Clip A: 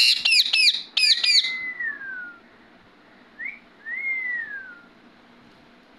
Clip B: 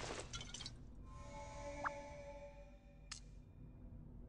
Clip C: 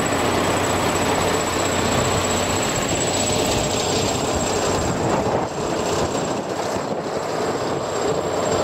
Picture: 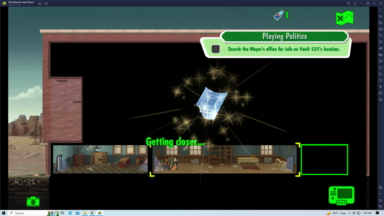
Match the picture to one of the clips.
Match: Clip B